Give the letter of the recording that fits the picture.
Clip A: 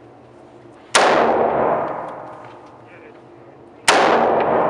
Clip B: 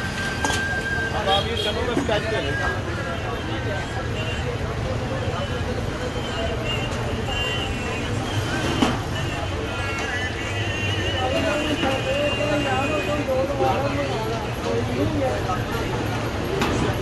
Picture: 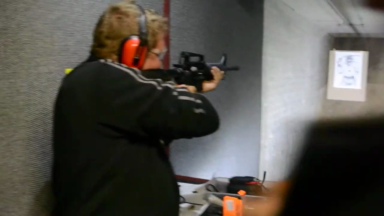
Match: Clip A